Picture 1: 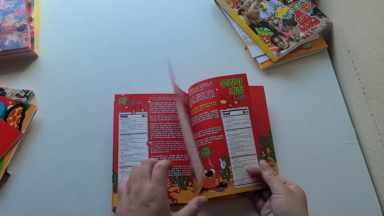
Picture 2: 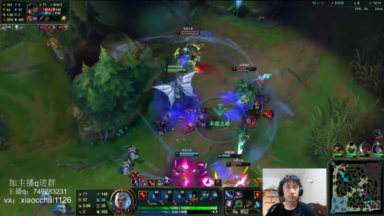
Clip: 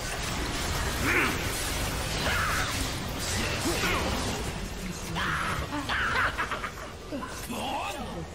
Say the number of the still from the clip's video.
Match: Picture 2